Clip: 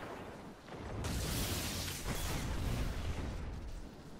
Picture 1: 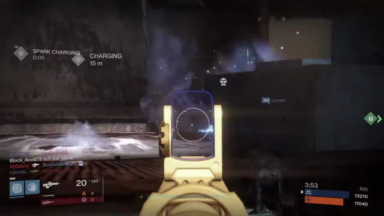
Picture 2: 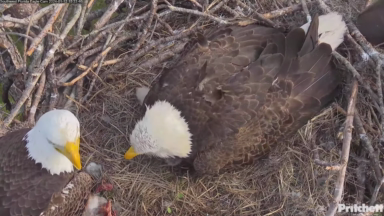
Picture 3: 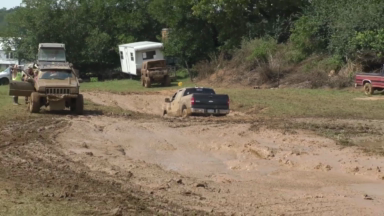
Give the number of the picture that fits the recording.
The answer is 1